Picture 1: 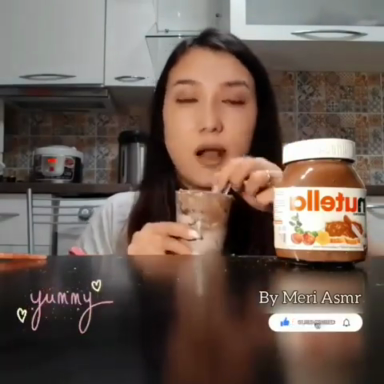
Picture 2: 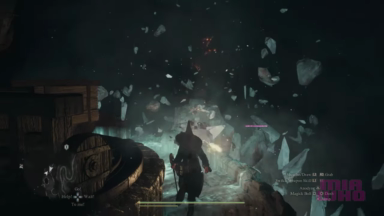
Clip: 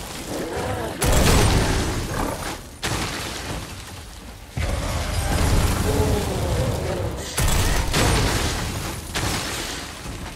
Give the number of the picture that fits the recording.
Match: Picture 2